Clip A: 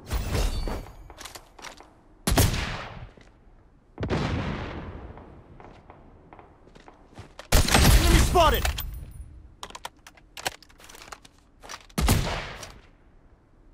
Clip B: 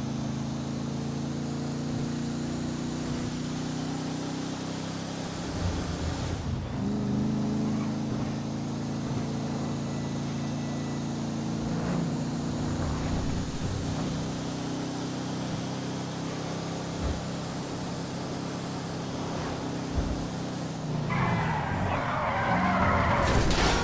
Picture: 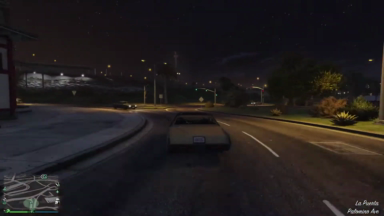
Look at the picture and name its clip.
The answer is B